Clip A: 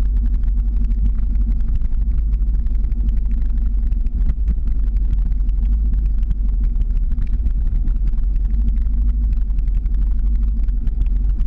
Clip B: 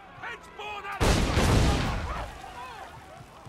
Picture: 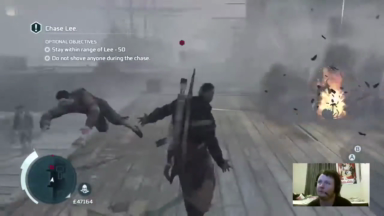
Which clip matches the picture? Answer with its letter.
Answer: B